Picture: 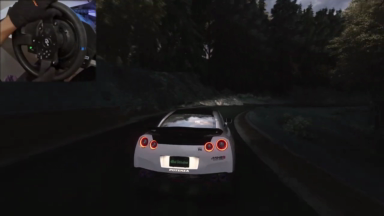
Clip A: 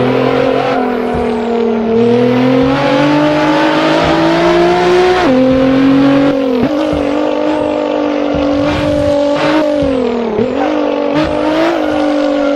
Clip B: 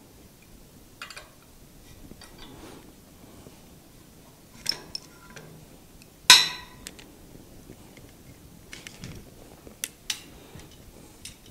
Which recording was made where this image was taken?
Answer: A